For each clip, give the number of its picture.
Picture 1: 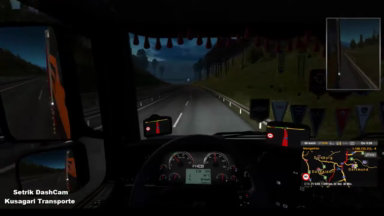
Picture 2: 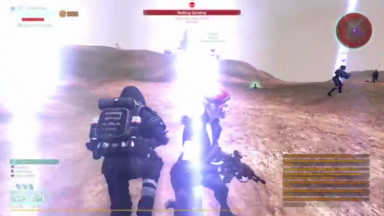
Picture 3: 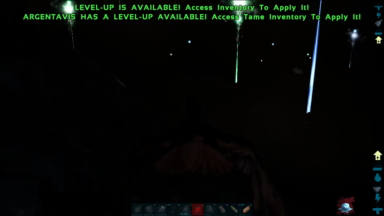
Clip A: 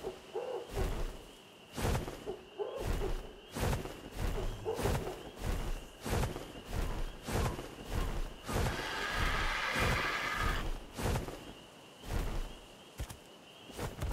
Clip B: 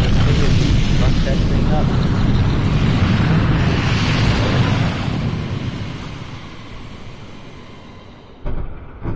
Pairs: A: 3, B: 2